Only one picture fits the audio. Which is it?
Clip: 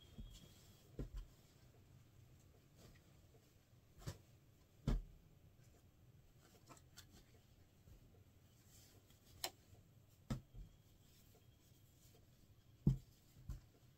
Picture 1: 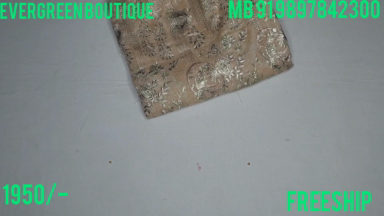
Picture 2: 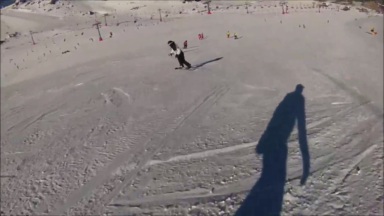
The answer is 1